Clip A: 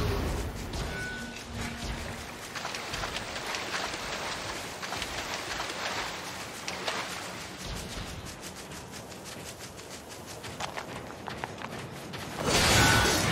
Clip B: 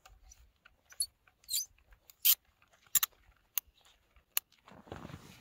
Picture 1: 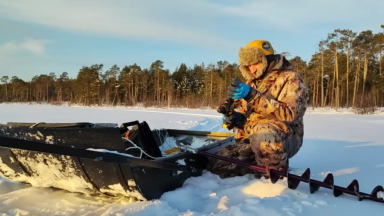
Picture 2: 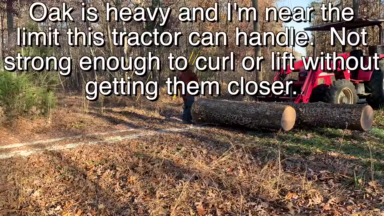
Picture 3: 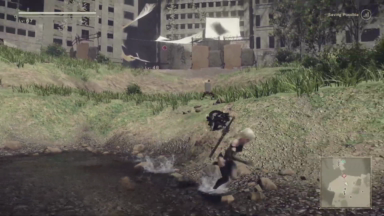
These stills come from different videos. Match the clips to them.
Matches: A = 3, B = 1